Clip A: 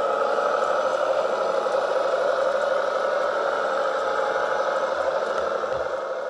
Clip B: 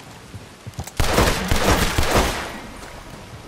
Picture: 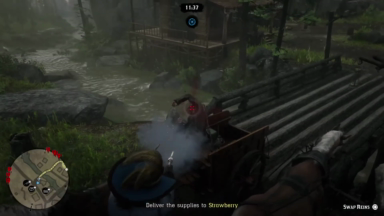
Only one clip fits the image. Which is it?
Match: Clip B